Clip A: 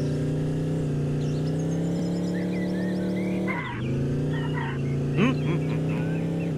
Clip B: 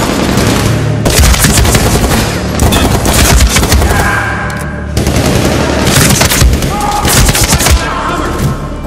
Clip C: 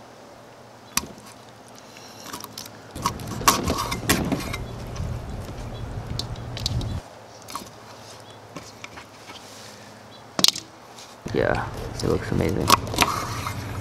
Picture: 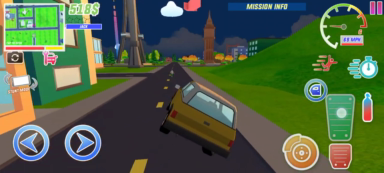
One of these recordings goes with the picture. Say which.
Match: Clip A